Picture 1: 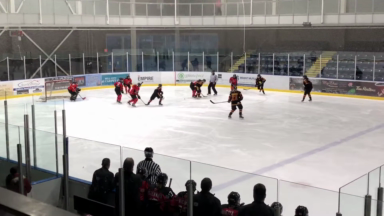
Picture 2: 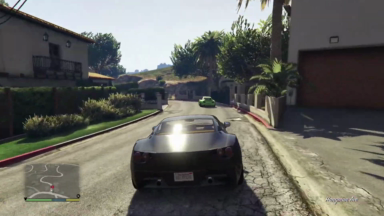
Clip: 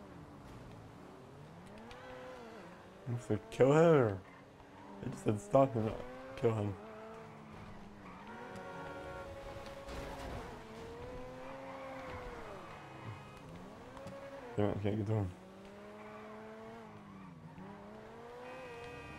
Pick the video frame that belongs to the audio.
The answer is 2